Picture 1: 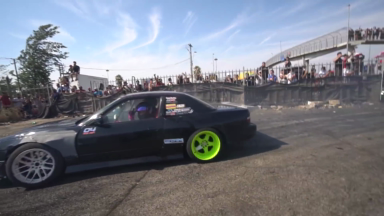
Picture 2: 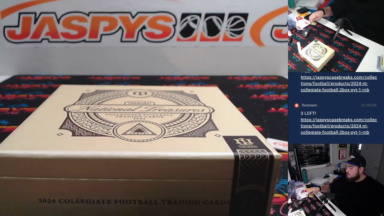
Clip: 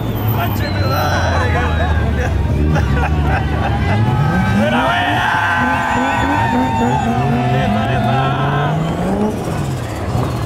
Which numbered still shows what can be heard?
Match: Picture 1